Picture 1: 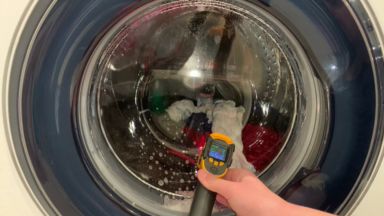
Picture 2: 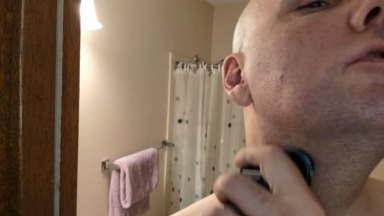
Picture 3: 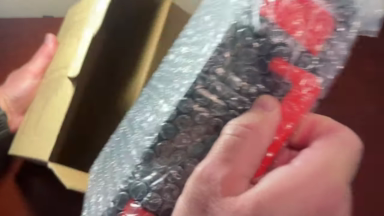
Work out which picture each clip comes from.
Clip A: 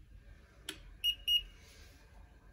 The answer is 1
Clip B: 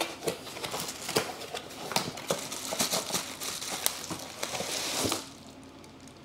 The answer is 3